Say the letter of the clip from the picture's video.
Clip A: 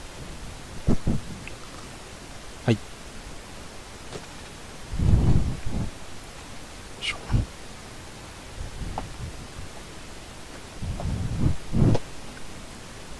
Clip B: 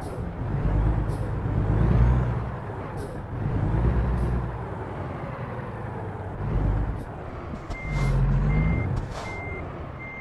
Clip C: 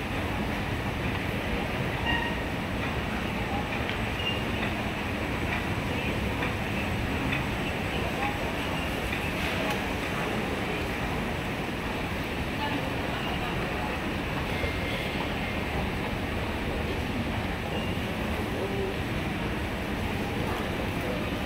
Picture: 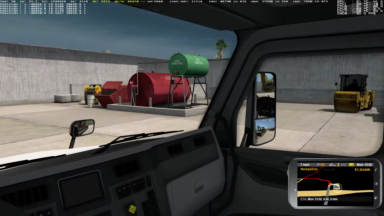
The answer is B